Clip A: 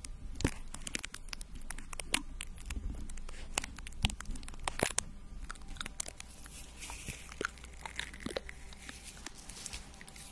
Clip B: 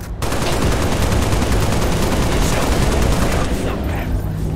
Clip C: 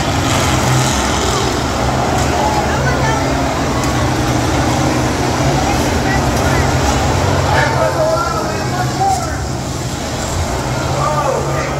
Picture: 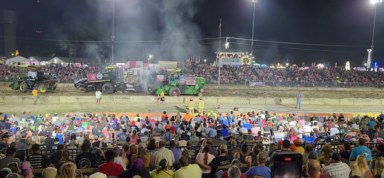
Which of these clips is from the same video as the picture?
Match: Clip C